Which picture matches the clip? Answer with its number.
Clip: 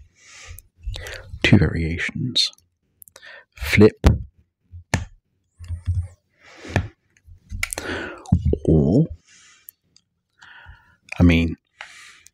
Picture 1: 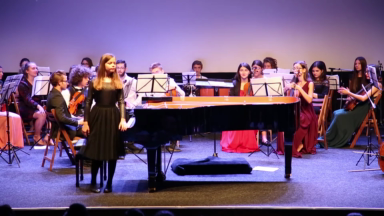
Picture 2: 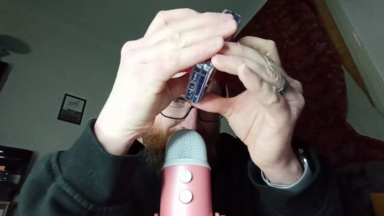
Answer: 2